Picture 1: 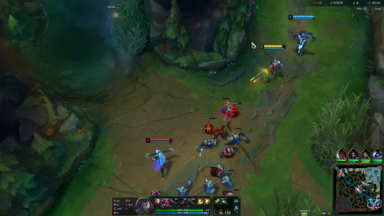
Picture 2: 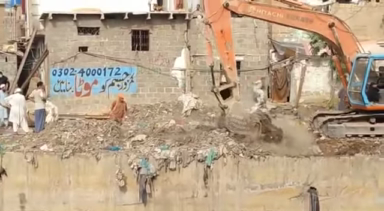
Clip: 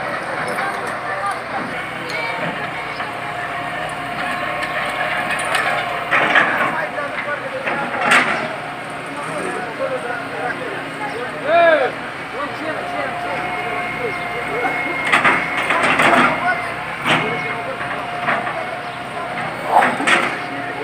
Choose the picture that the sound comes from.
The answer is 2